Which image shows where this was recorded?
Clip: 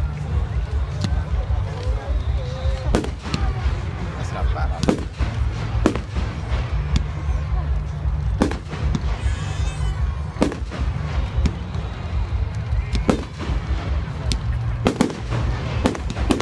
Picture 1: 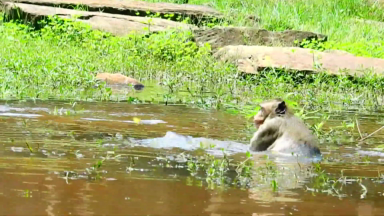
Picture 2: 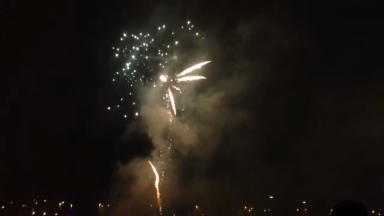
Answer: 2